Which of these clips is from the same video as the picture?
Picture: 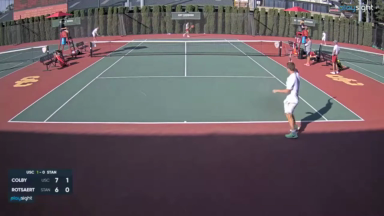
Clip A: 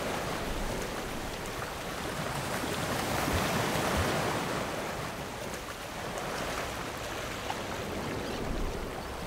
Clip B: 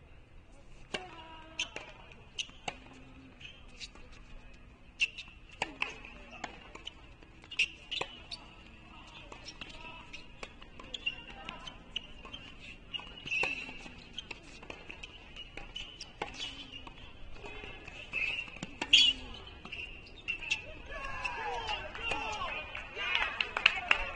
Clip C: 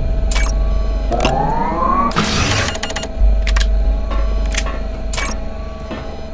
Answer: B